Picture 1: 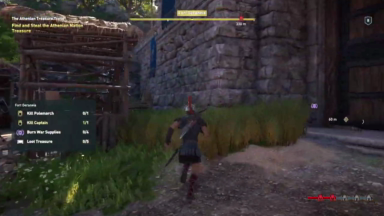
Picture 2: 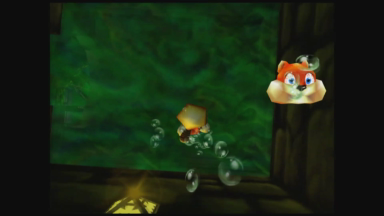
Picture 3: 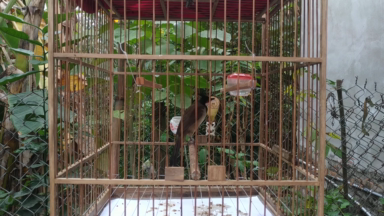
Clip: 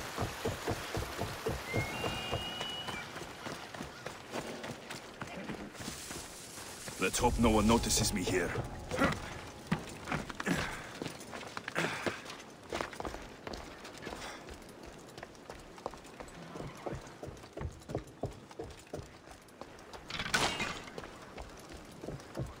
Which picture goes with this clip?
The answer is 1